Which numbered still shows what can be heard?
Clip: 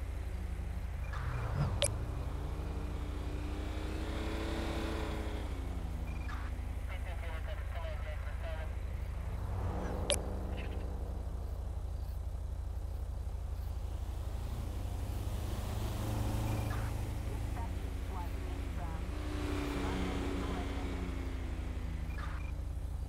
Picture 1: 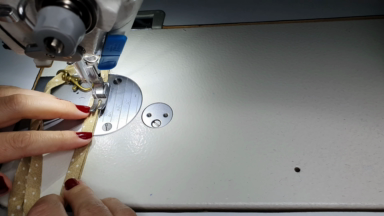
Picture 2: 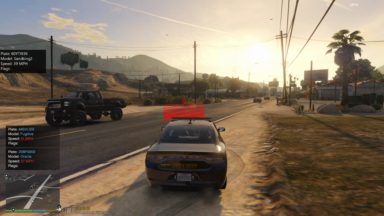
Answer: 2